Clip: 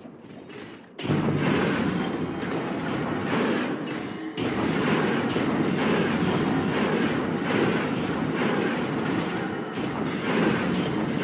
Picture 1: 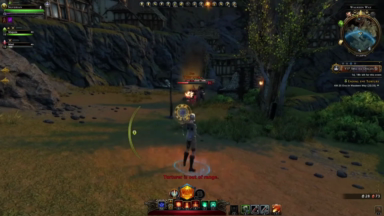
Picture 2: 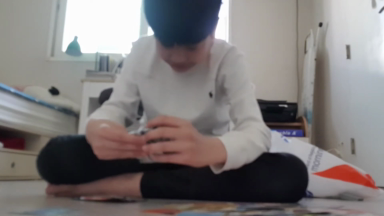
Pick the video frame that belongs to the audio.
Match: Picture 1